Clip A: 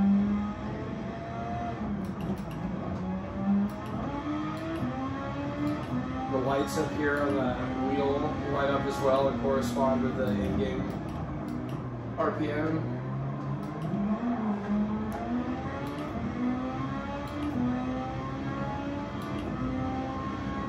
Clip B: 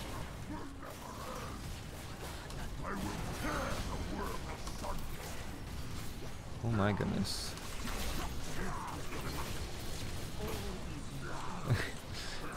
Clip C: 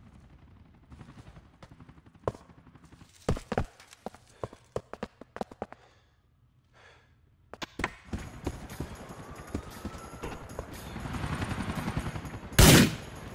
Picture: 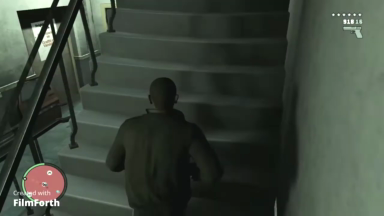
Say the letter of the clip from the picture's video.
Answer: C